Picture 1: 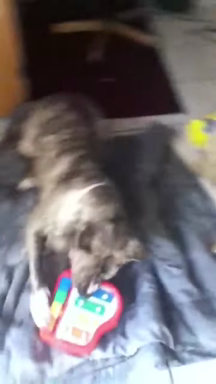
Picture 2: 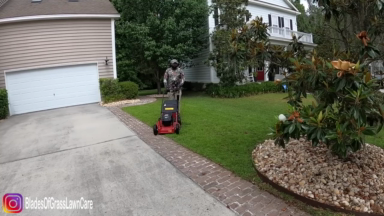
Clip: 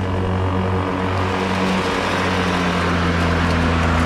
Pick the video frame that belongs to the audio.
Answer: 2